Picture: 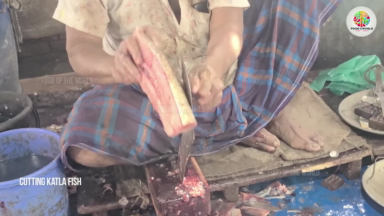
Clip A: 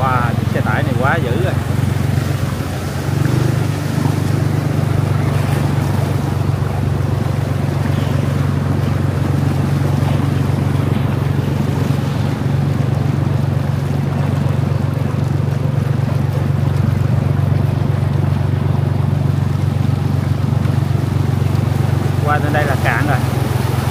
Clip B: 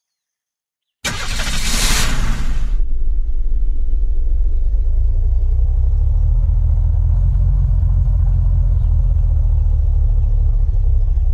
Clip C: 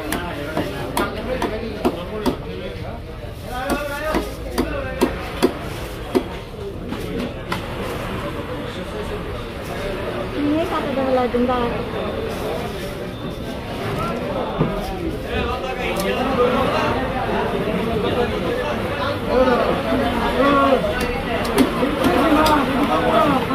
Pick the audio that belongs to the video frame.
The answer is C